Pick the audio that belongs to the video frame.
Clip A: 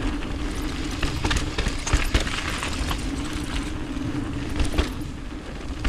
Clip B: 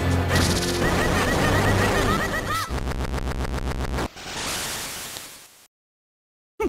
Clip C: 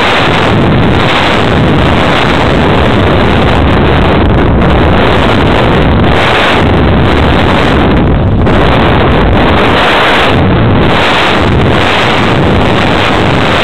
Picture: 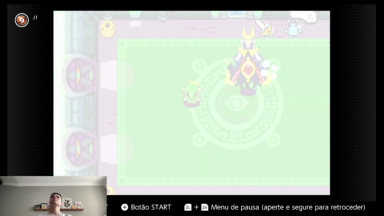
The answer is B